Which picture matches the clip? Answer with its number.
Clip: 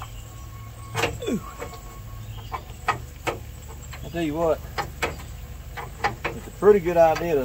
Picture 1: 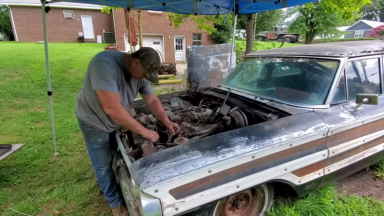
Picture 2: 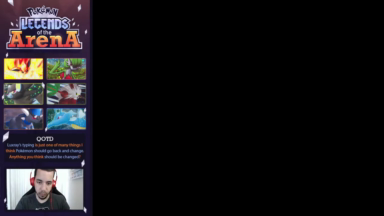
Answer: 1